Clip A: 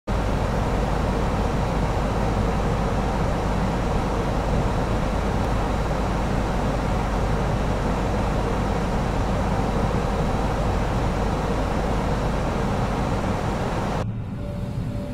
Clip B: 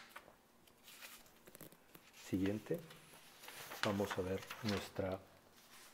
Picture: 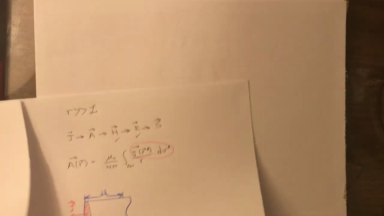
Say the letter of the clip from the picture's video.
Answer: B